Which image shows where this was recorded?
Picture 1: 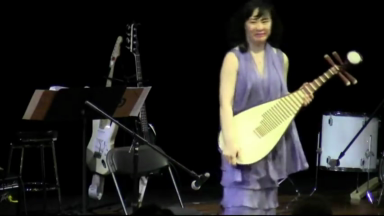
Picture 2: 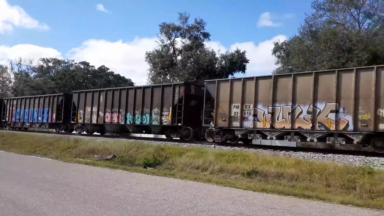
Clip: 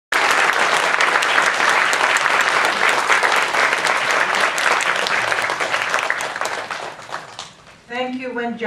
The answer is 1